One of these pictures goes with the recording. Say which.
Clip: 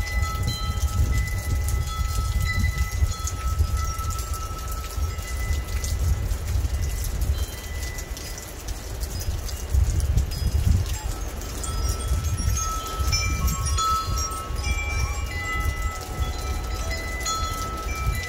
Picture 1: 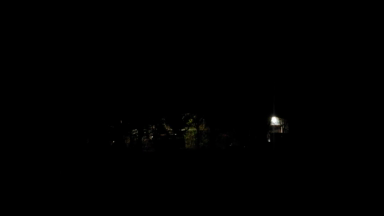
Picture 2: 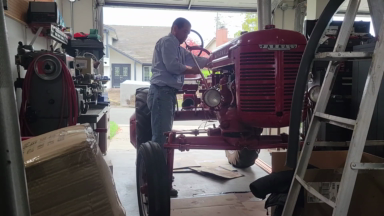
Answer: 1